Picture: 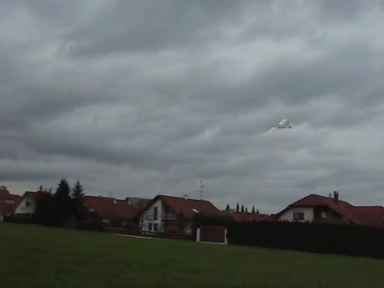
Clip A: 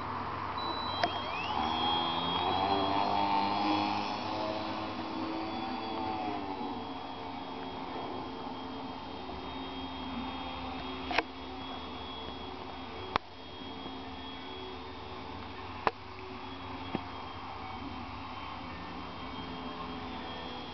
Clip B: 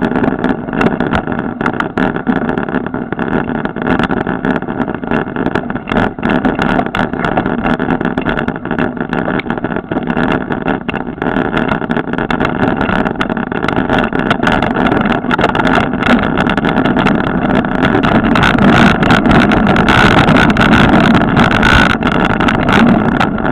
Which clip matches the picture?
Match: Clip A